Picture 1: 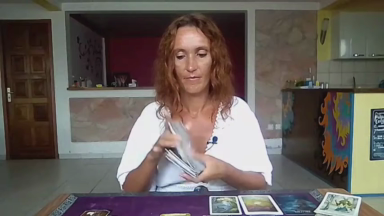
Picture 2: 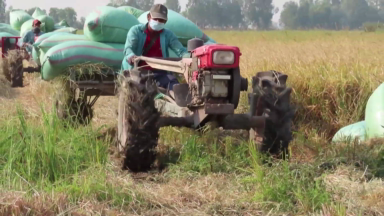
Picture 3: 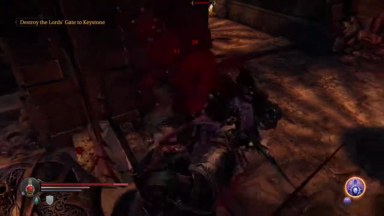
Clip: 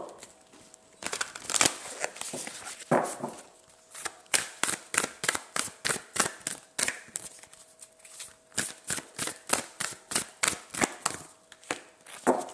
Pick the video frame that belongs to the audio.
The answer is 1